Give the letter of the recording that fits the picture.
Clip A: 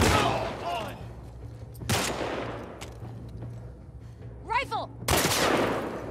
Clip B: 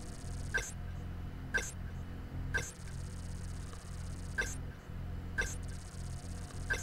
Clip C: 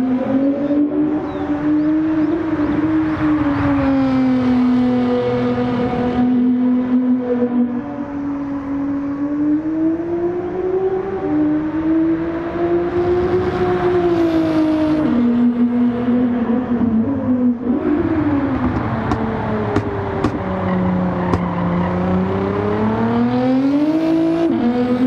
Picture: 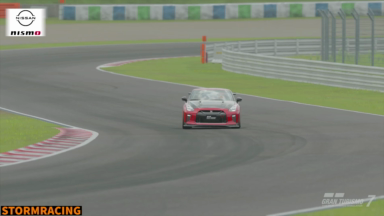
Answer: C